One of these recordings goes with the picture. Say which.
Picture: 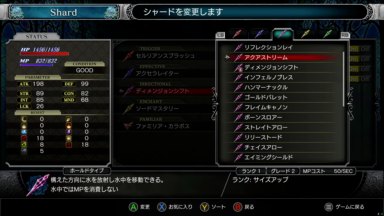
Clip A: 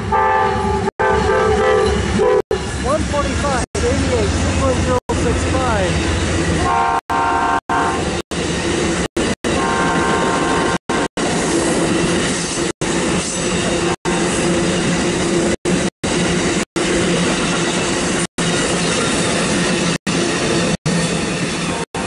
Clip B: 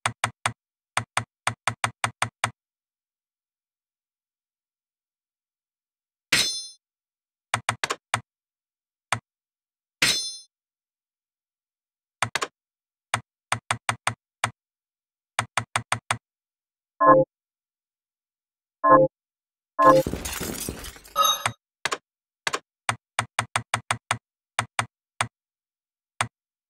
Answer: B